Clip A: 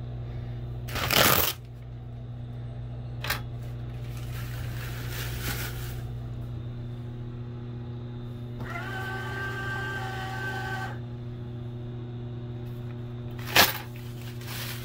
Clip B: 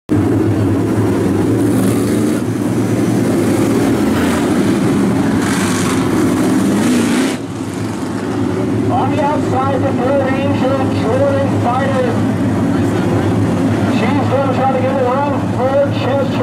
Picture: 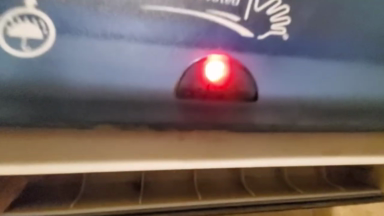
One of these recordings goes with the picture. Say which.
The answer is A